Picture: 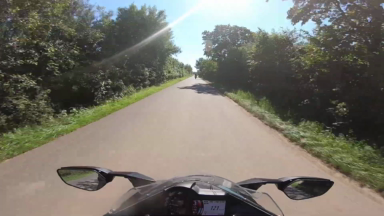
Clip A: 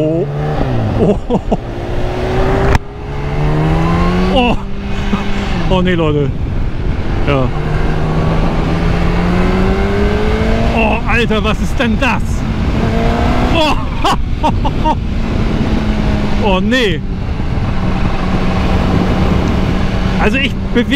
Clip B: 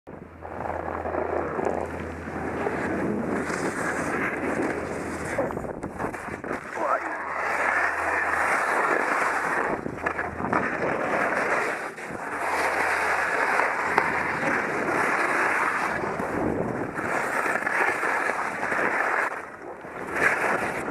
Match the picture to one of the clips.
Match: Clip A